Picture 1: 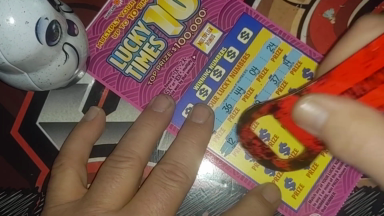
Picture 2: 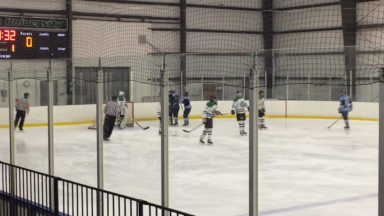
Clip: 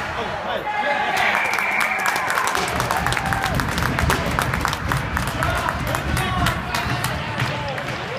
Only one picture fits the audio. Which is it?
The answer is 2